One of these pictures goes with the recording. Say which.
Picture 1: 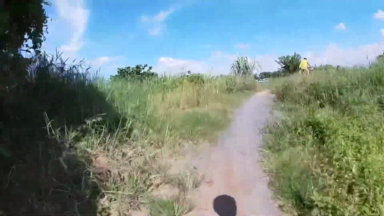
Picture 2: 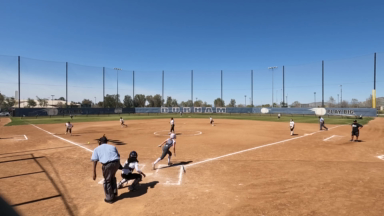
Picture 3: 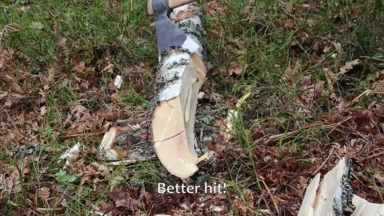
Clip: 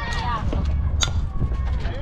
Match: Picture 2